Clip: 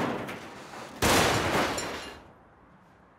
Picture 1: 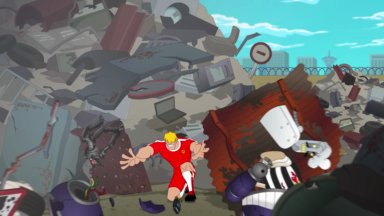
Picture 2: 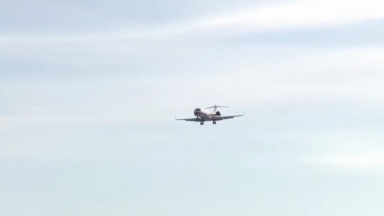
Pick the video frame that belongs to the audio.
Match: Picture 1